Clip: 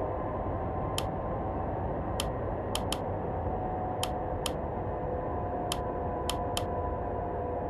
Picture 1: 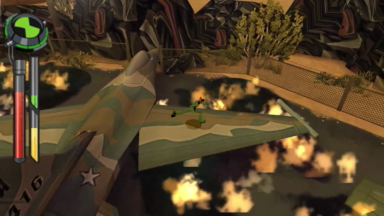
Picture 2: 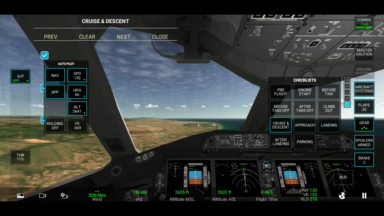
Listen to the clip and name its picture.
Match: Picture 2